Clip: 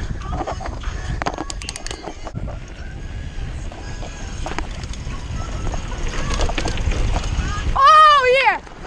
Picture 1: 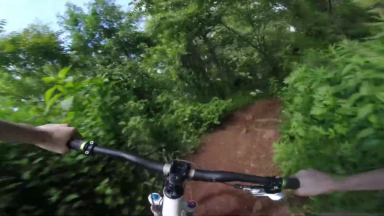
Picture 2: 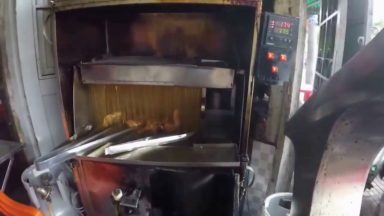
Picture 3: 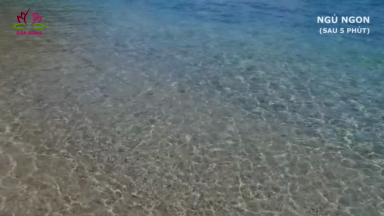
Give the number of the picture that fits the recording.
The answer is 1